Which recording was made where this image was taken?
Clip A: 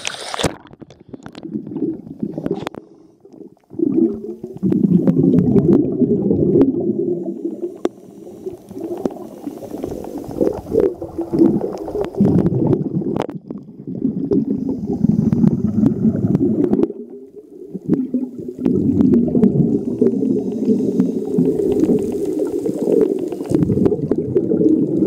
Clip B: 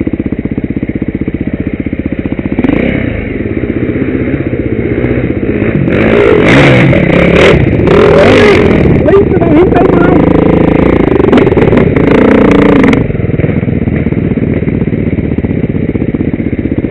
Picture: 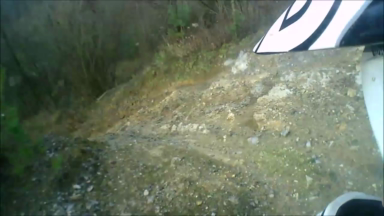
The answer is B